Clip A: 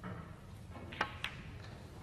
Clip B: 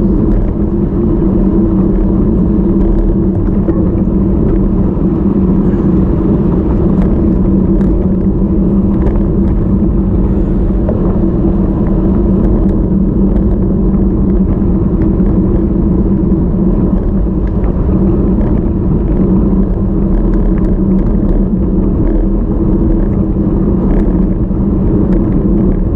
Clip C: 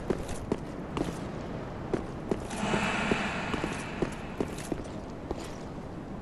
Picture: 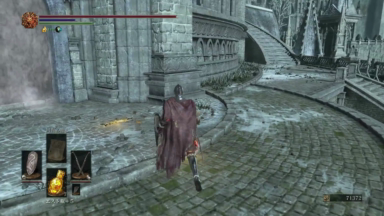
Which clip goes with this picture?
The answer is C